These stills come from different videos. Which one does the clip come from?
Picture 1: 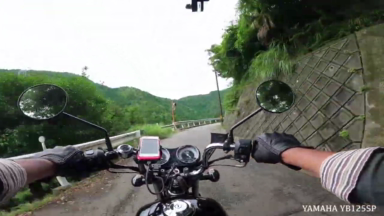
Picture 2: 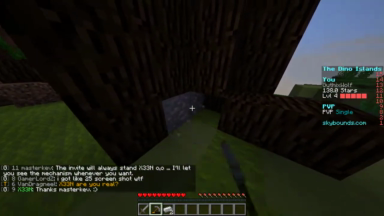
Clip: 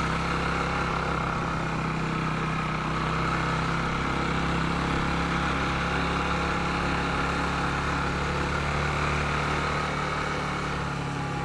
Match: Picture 1